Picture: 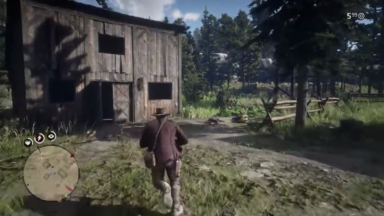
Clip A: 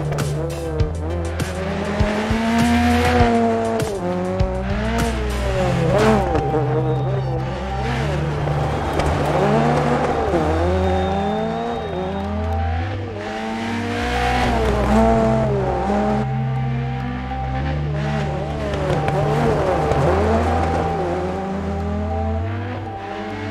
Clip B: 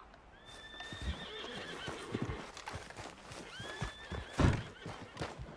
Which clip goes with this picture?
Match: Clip B